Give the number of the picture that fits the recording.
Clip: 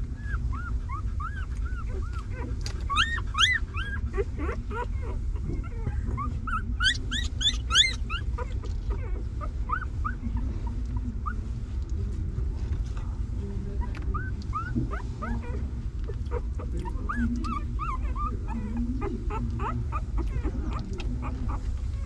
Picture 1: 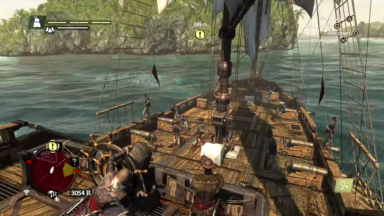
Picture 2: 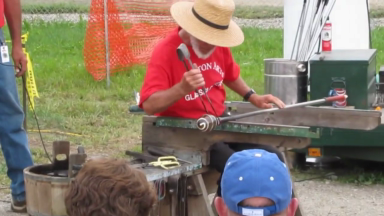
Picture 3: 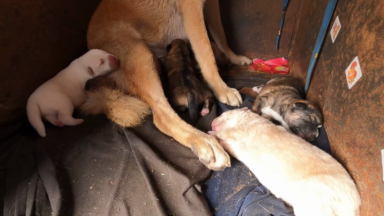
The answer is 3